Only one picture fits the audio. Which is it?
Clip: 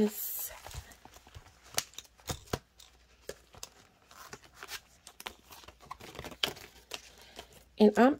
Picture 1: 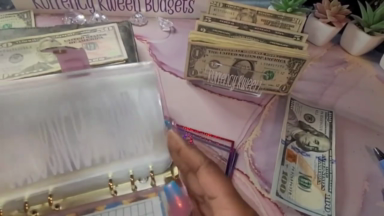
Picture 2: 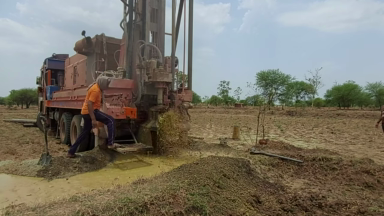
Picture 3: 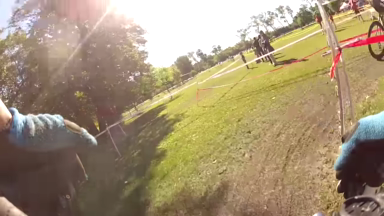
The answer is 1